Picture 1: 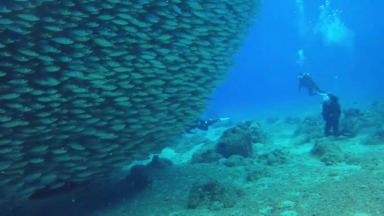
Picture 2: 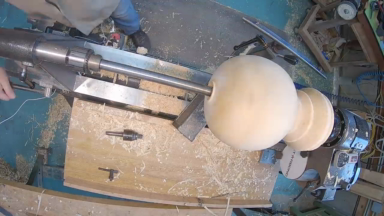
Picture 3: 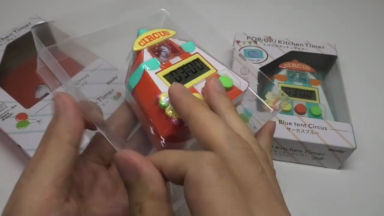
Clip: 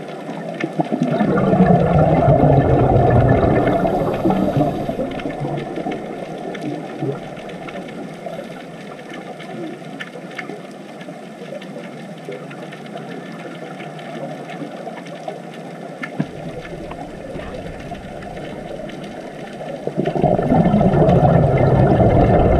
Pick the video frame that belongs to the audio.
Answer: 1